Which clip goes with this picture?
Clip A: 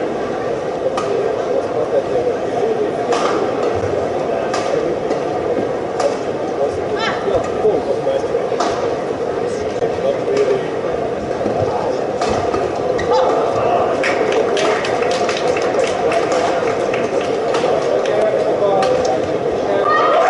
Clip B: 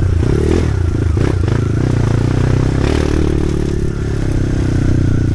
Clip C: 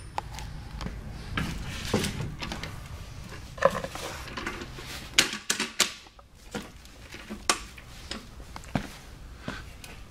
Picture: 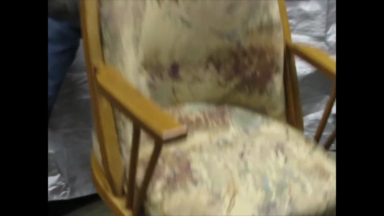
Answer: C